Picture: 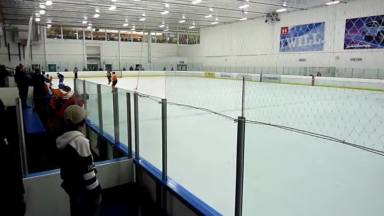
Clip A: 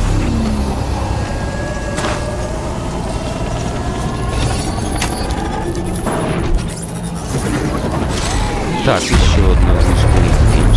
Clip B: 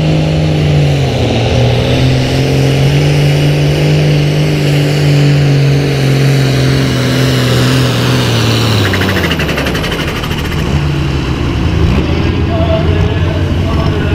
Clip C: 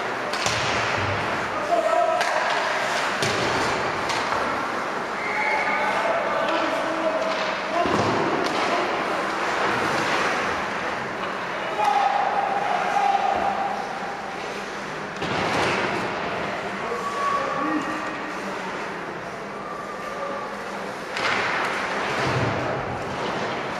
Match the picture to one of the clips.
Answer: C